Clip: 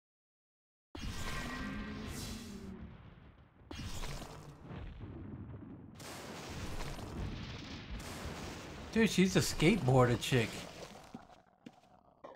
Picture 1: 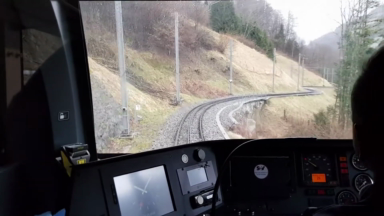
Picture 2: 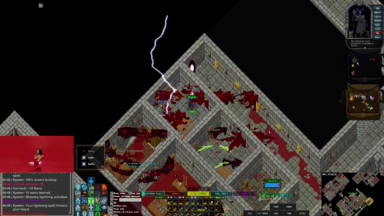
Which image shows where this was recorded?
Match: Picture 2